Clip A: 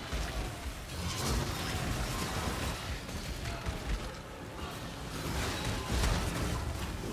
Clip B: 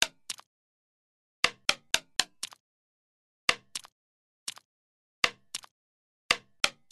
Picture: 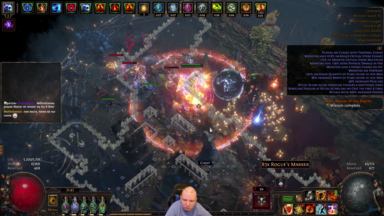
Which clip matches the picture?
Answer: A